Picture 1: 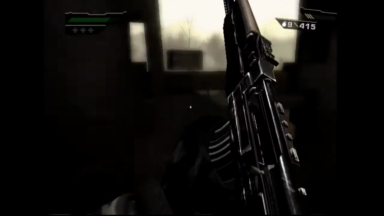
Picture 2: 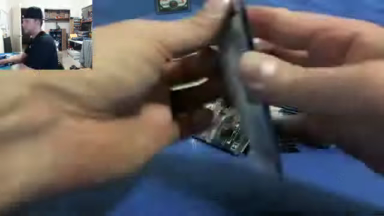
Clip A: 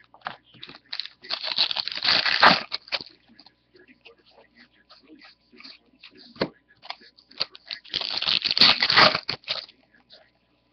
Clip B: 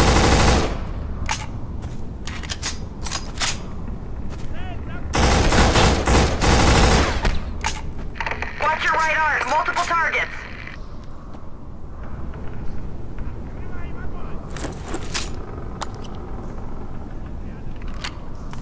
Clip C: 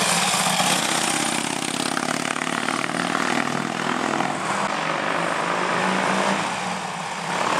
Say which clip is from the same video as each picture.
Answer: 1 B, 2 A